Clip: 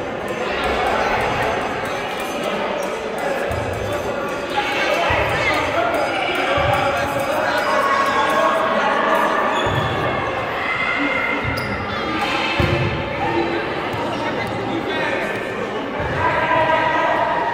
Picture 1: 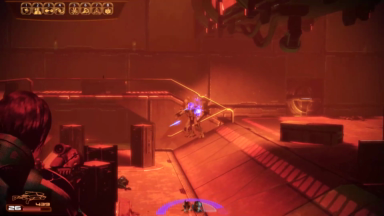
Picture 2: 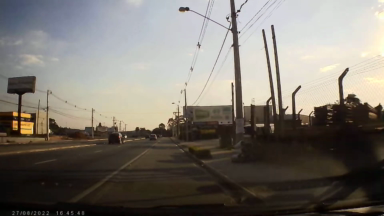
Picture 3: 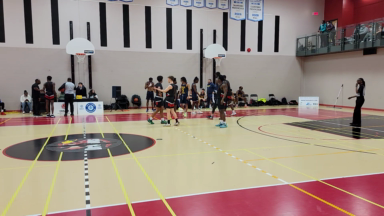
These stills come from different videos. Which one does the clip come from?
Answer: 3